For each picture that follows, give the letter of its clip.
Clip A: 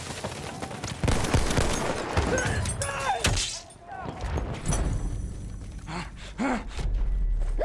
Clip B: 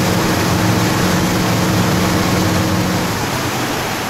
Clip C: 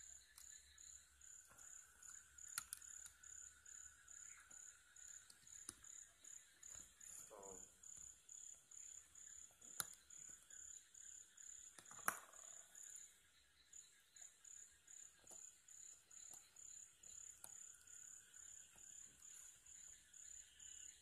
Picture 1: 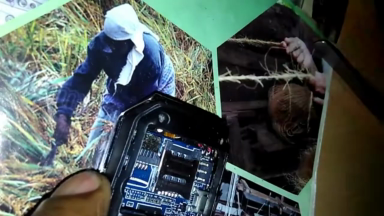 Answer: C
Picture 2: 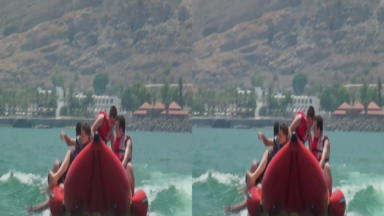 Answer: B